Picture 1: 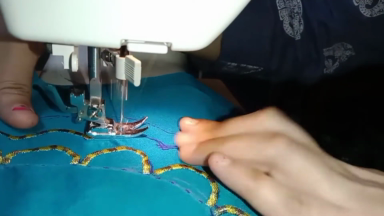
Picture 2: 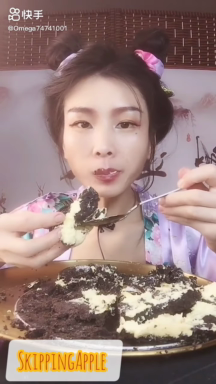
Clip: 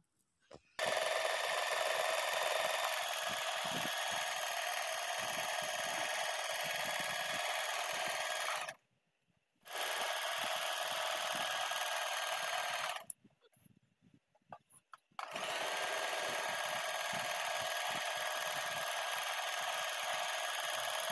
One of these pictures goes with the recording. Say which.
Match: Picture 1